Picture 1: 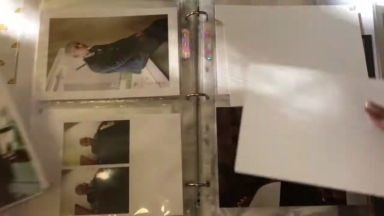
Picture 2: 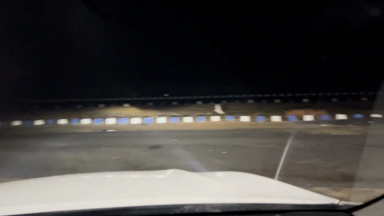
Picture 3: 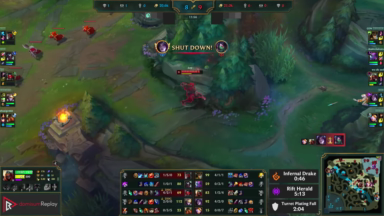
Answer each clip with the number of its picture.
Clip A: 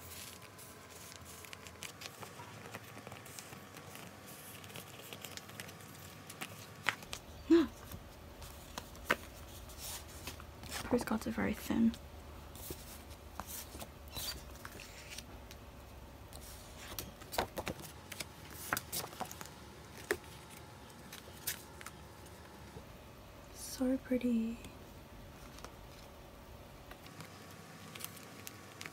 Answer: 1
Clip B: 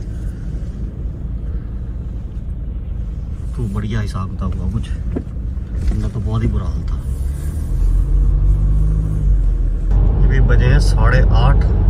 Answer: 2